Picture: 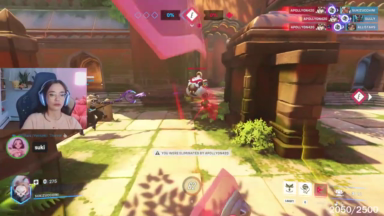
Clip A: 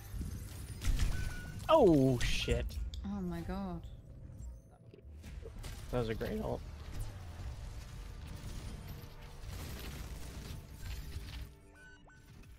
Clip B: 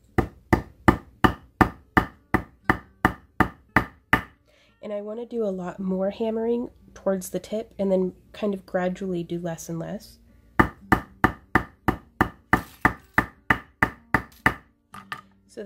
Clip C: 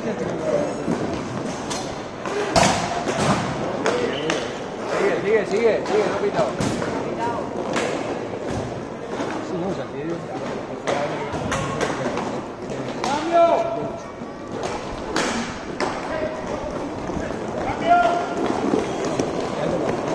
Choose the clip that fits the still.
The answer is A